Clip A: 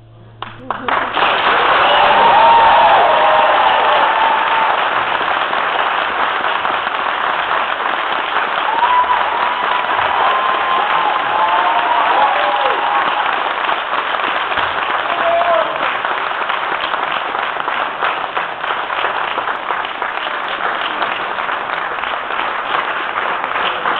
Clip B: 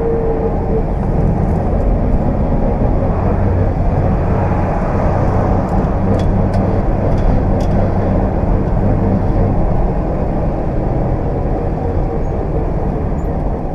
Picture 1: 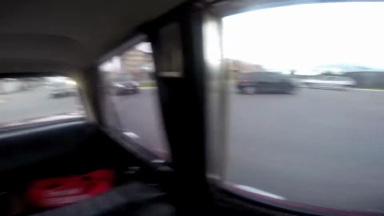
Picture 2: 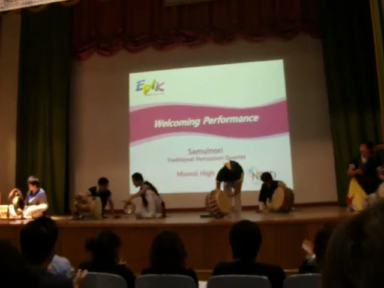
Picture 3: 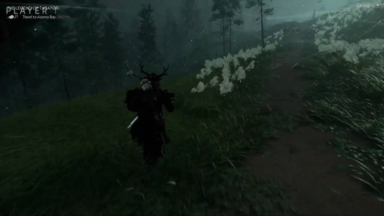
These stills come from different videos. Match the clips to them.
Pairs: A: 2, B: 1